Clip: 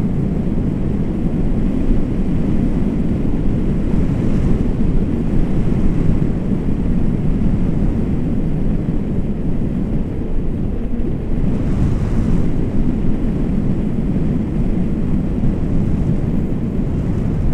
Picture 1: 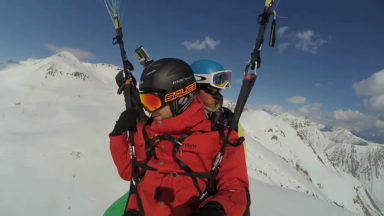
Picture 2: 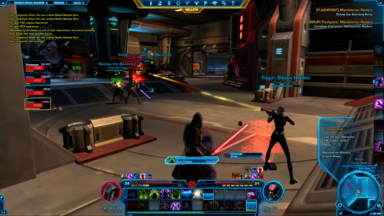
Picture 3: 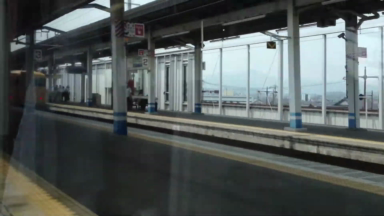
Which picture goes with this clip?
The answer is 1